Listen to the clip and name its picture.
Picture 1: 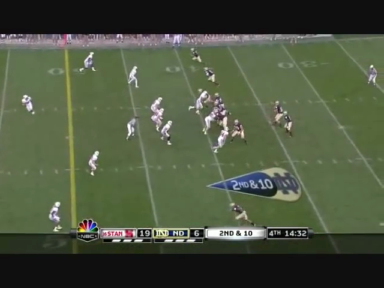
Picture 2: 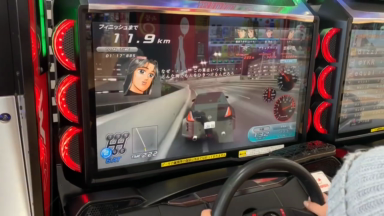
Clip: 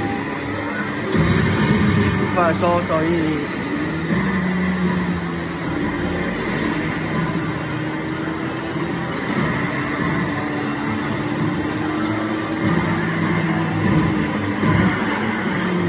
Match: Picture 2